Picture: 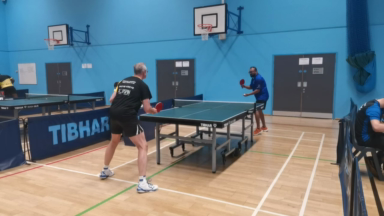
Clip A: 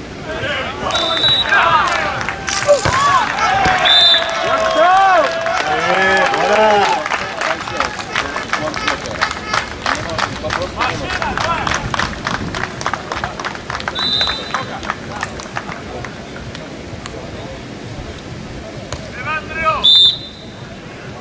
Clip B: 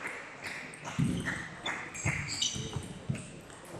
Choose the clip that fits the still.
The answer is B